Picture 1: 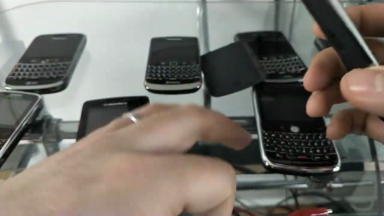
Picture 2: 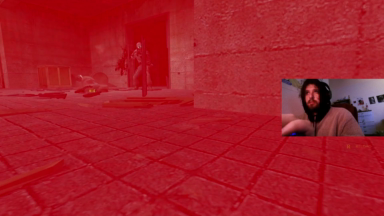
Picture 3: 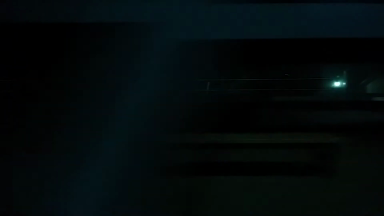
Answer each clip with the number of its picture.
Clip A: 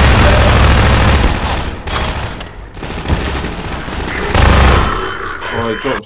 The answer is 2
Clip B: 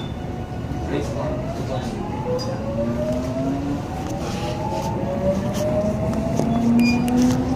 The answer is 3